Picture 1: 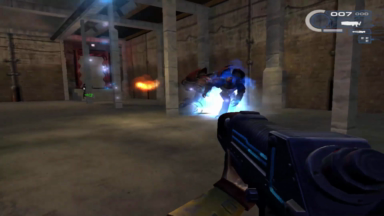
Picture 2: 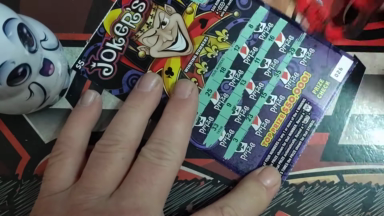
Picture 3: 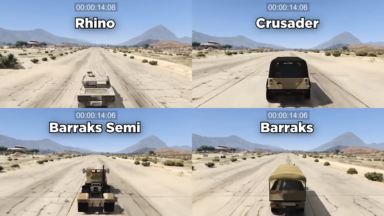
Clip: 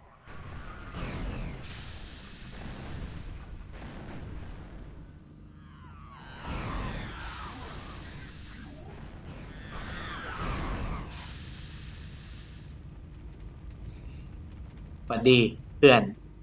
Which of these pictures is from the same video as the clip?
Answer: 1